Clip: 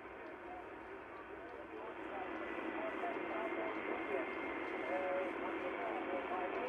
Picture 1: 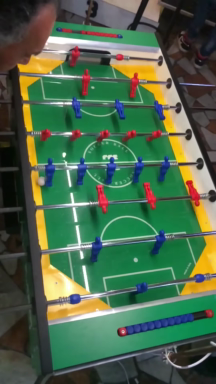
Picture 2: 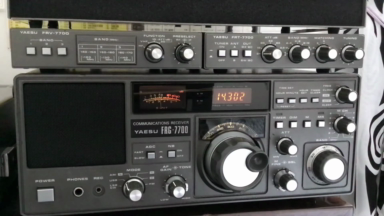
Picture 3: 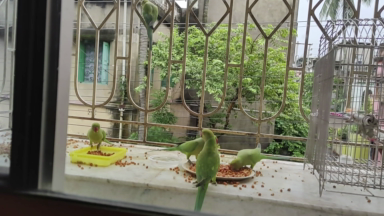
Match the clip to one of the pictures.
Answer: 2